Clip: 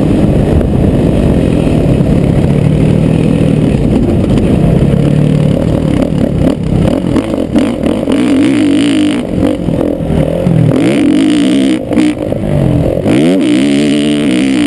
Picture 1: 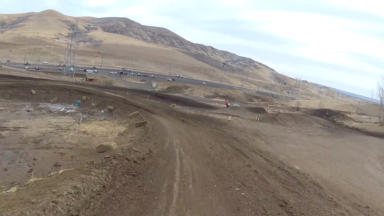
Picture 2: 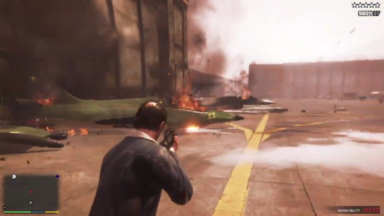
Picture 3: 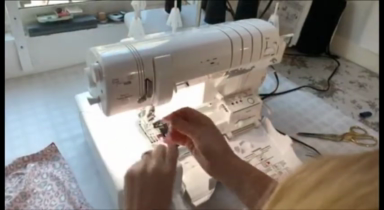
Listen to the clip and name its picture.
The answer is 1